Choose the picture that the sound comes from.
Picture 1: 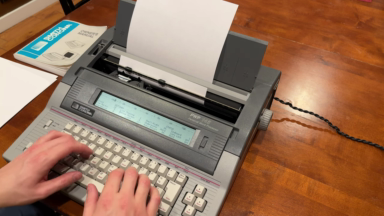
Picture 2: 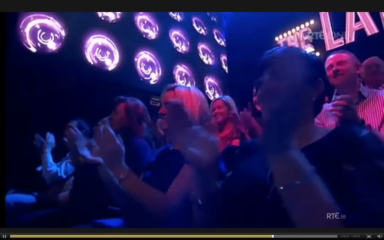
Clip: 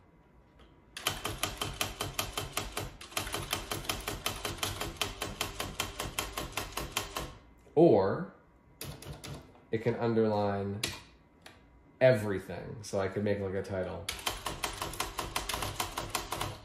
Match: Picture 1